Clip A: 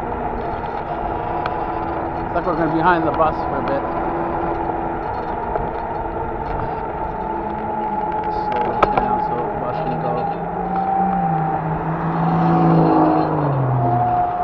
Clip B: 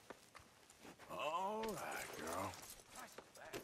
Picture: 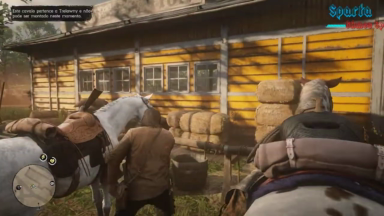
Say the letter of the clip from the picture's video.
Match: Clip B